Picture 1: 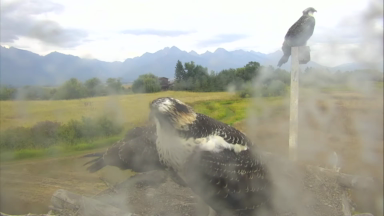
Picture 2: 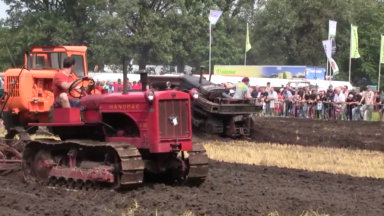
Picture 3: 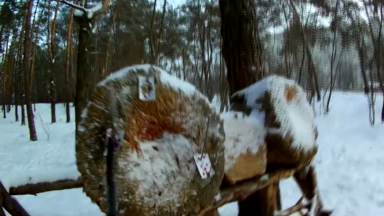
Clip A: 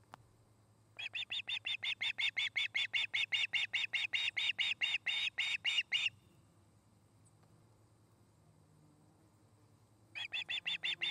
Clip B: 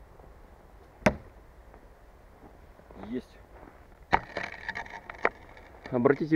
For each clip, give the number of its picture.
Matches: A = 1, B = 3